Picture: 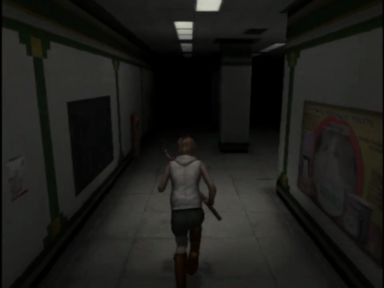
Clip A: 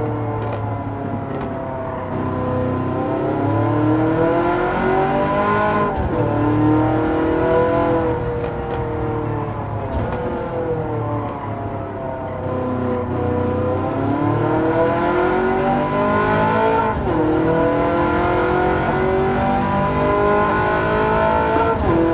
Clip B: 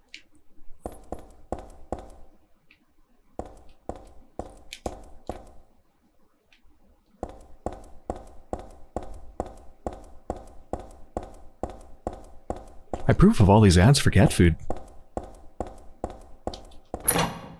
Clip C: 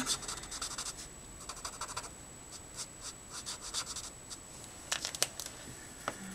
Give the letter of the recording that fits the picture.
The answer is B